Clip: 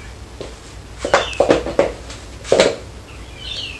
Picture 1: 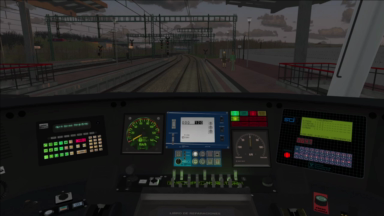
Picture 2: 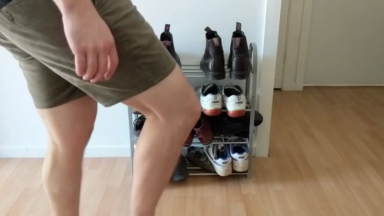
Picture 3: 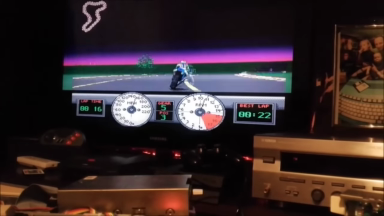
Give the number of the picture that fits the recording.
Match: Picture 2